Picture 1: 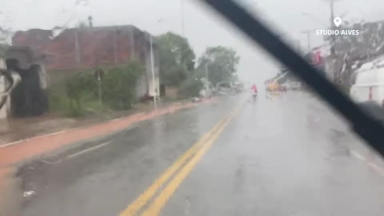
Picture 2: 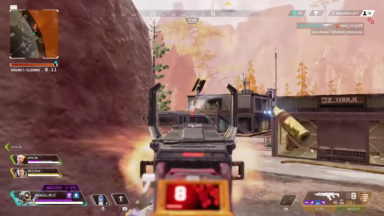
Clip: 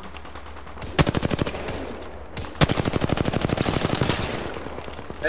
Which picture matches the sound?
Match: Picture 2